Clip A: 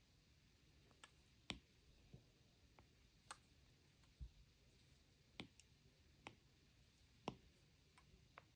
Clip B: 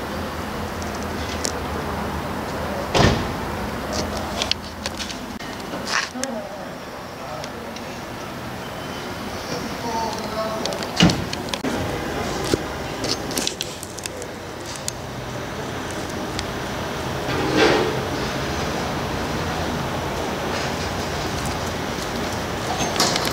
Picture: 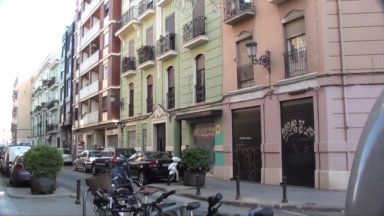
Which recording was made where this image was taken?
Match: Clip B